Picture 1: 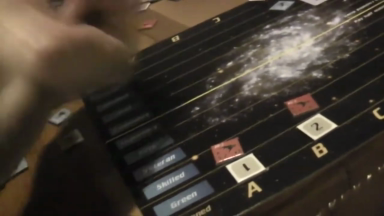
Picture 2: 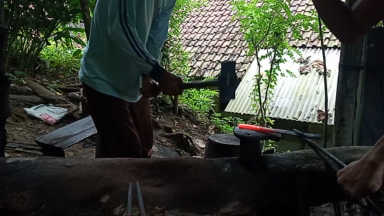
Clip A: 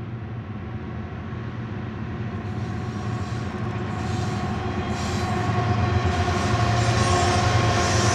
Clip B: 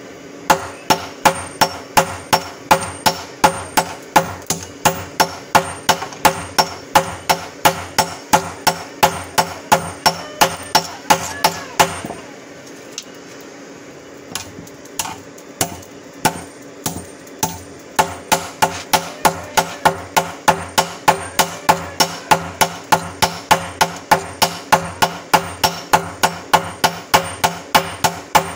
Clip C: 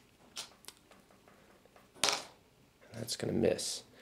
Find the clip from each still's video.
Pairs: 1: C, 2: B